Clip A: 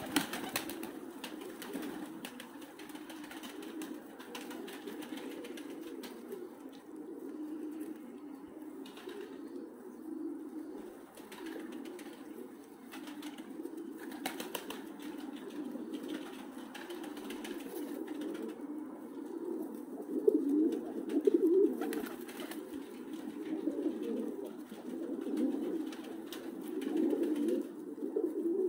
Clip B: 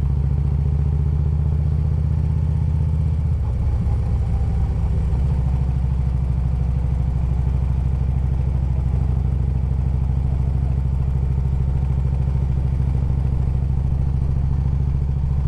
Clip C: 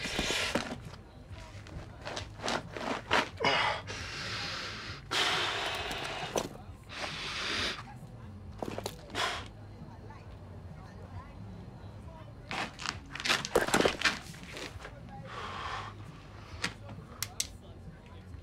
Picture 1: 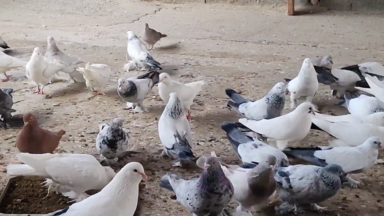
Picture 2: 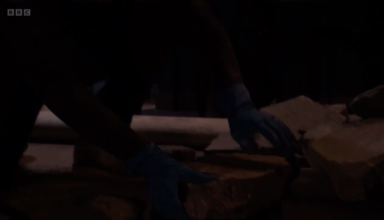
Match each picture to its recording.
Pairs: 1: A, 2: C